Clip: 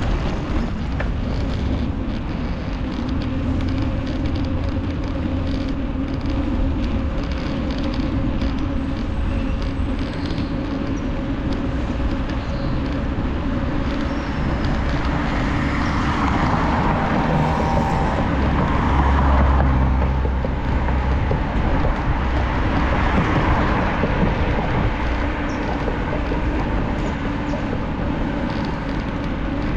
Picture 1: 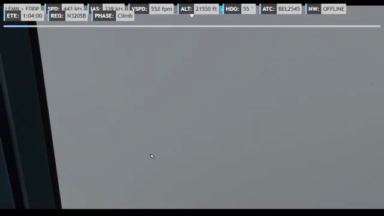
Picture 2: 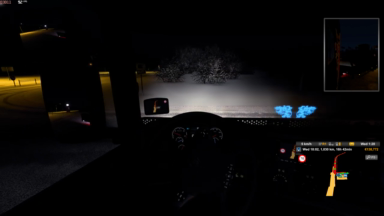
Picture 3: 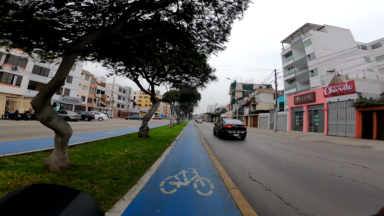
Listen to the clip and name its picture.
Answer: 3